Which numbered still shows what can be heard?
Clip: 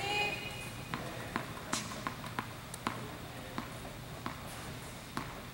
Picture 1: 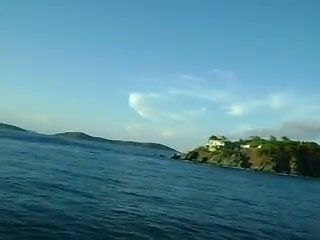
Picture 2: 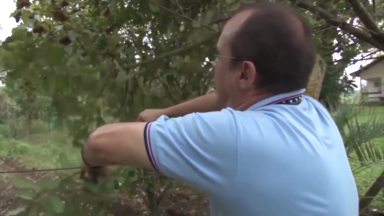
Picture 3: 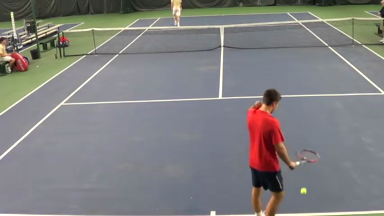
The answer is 3